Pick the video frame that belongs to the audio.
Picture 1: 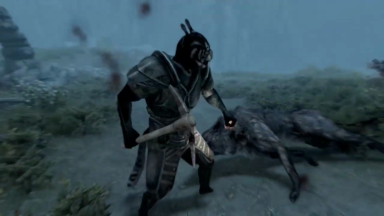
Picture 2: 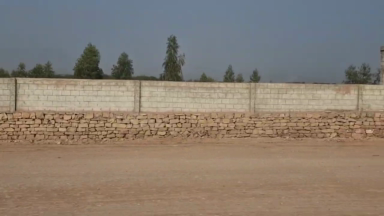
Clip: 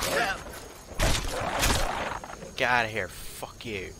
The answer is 1